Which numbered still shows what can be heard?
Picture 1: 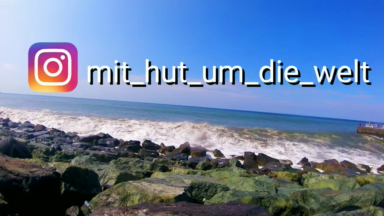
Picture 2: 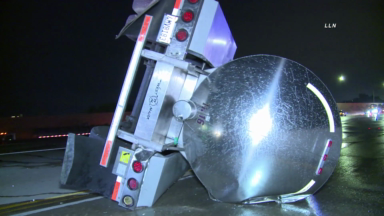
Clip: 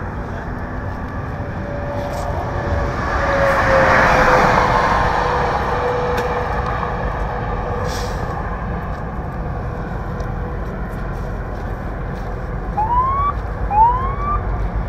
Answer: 2